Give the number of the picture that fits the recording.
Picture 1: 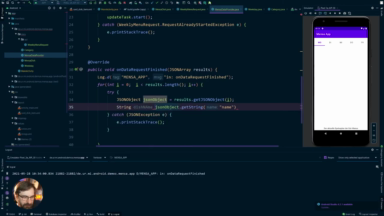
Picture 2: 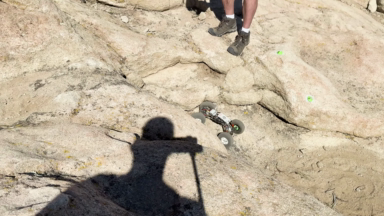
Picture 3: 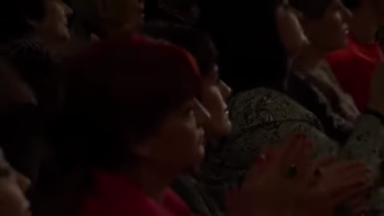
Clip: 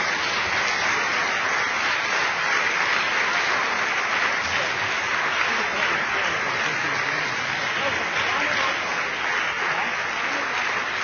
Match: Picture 3